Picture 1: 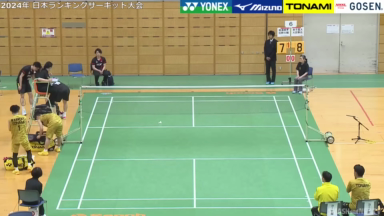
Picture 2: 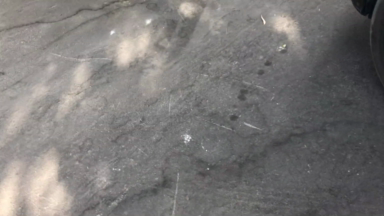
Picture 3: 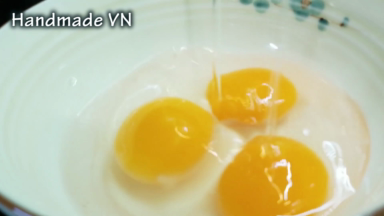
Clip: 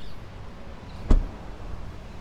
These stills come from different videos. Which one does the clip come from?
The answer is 2